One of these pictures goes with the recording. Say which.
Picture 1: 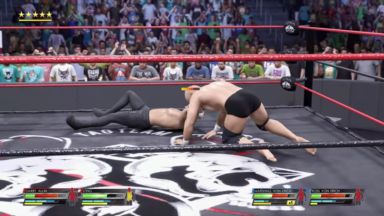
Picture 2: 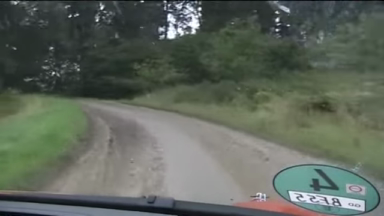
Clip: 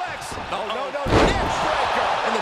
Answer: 1